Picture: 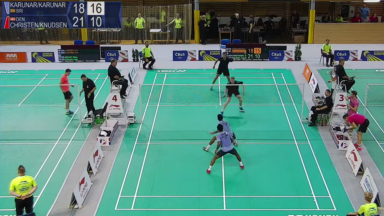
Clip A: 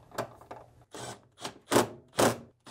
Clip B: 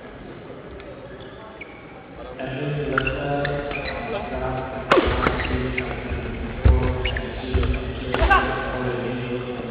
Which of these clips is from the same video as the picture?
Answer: B